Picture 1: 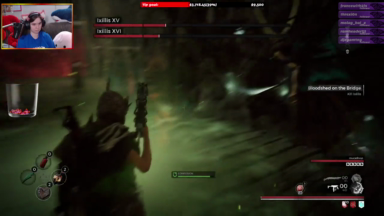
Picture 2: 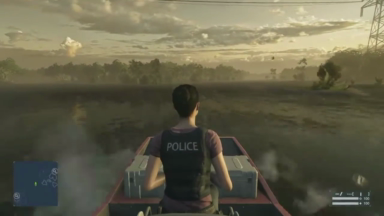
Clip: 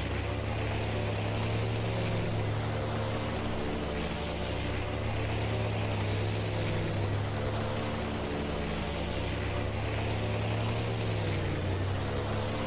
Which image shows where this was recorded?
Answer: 2